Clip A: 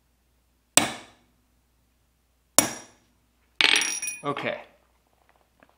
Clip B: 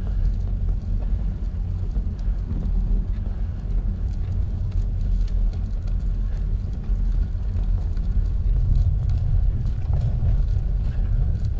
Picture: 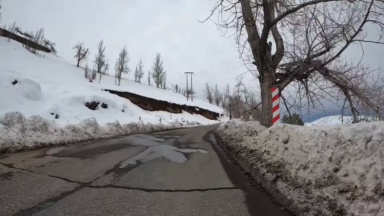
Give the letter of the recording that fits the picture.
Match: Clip B